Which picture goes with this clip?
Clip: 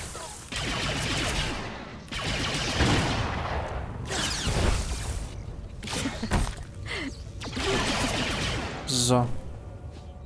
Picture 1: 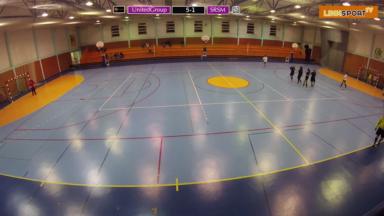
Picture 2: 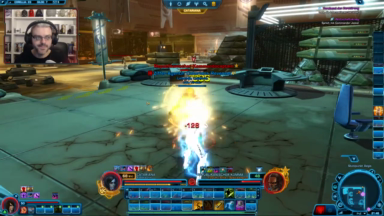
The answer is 2